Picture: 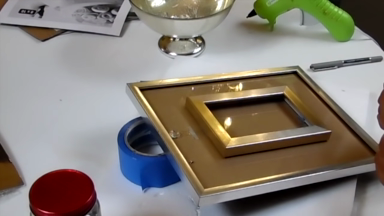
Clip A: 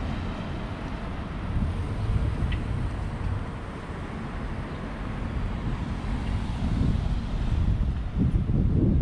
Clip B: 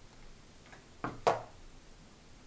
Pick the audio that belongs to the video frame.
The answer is B